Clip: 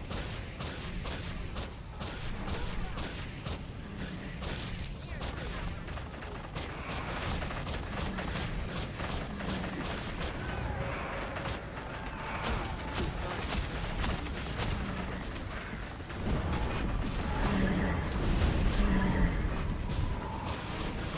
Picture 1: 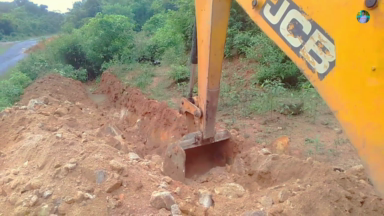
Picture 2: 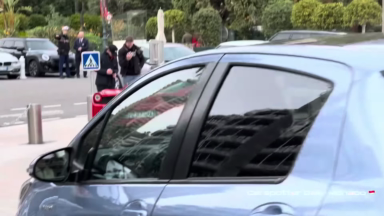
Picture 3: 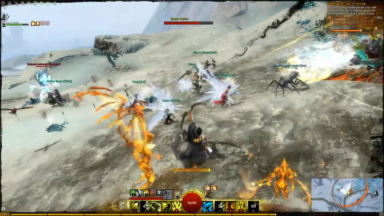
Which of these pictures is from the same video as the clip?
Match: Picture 3